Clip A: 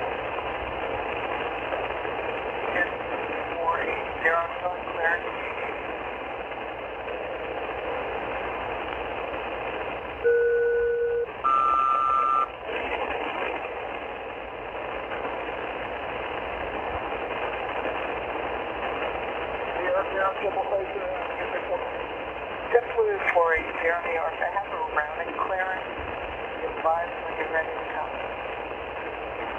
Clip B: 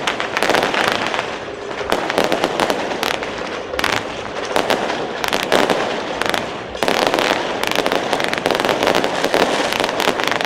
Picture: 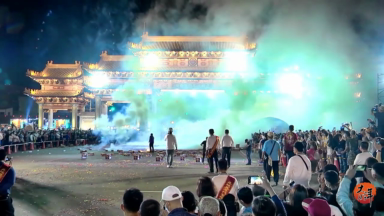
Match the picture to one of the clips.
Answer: B